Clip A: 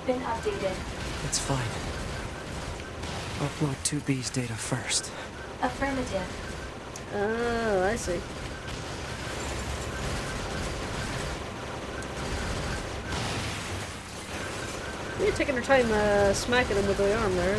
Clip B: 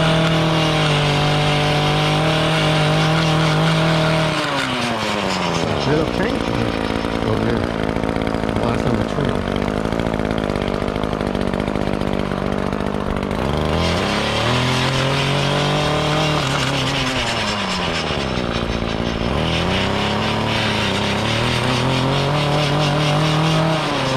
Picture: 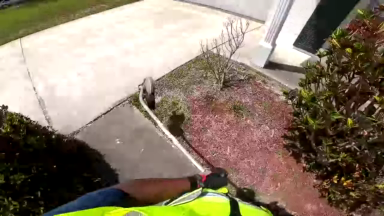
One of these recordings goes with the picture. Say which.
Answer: B